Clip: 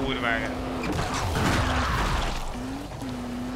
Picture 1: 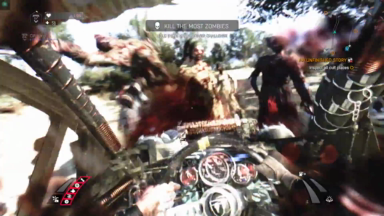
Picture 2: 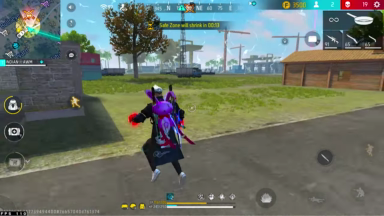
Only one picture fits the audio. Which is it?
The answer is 1